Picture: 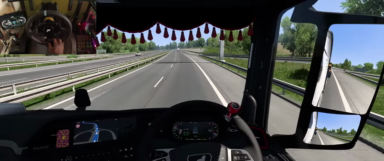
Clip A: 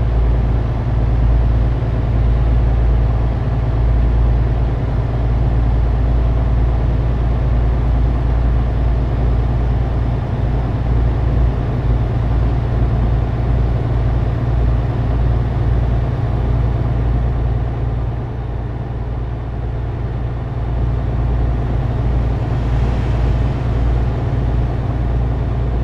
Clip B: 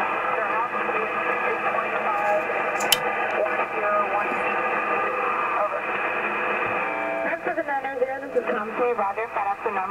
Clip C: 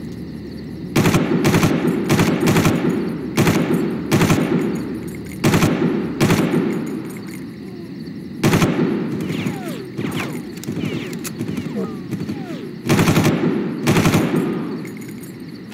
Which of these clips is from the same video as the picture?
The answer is A